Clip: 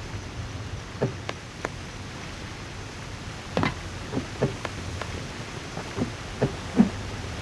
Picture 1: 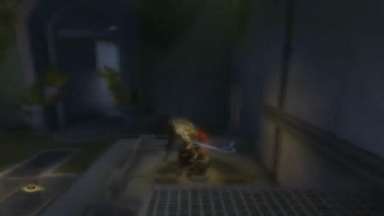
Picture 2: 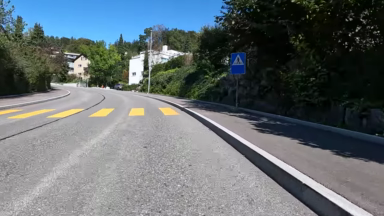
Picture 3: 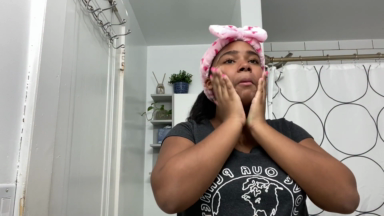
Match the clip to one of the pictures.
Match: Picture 1